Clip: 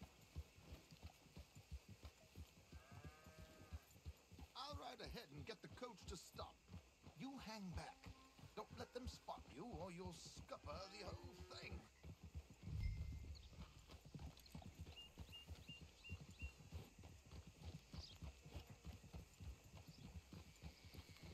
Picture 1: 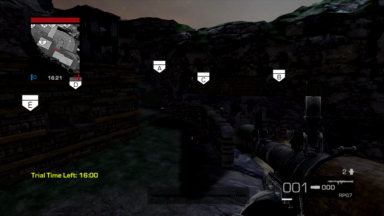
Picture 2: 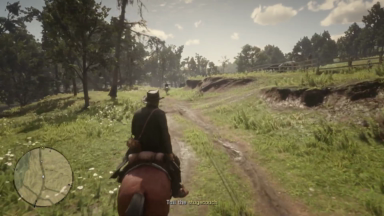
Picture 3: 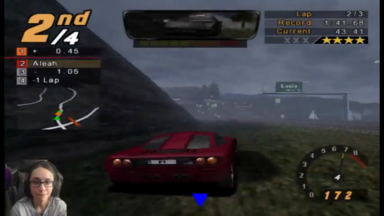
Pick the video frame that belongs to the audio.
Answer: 2